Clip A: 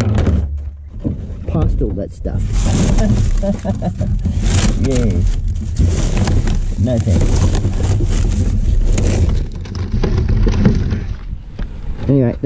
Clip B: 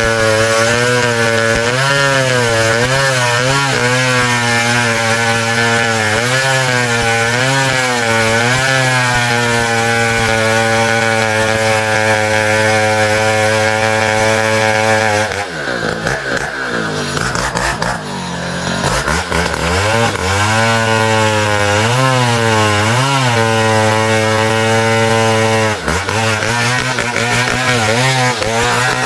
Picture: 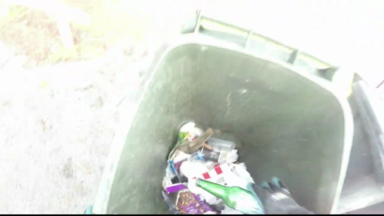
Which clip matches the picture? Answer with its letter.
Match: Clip A